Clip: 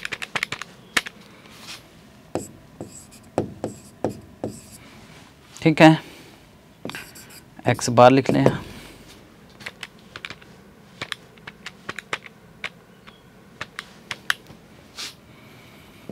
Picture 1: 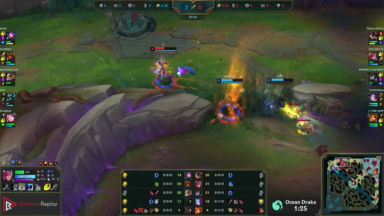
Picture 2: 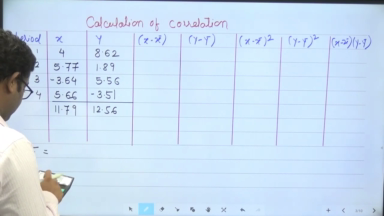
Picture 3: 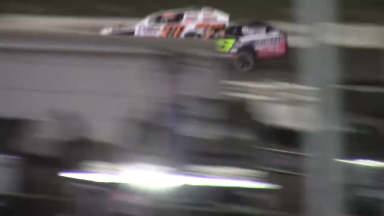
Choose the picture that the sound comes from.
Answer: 2